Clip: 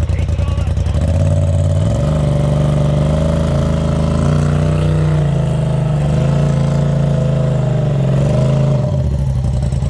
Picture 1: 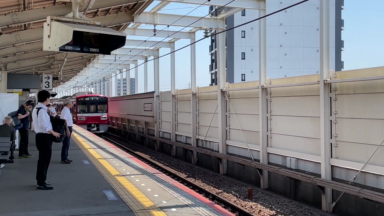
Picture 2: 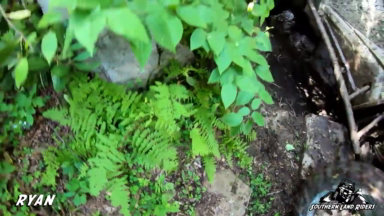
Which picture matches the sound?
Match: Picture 2